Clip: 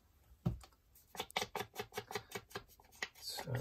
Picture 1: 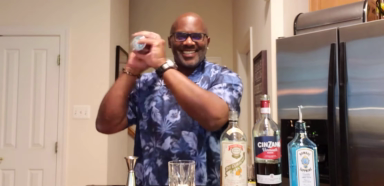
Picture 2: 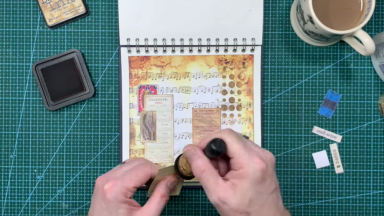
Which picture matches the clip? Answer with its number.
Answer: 2